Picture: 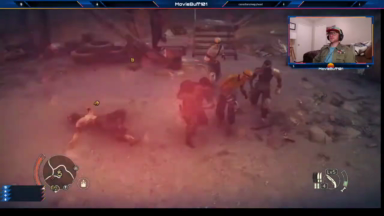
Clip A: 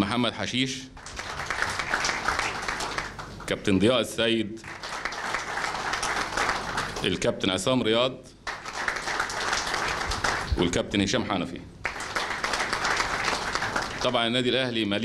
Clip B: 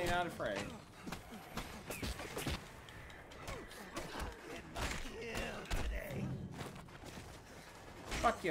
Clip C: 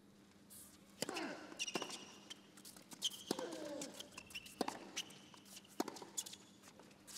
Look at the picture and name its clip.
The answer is B